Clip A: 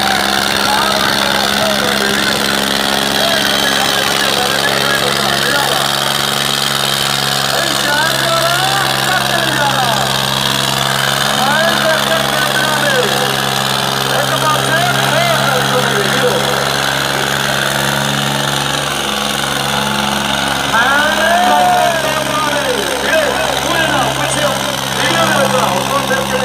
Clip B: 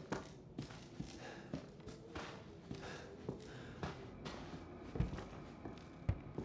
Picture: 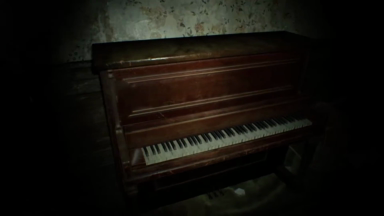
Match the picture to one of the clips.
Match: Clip B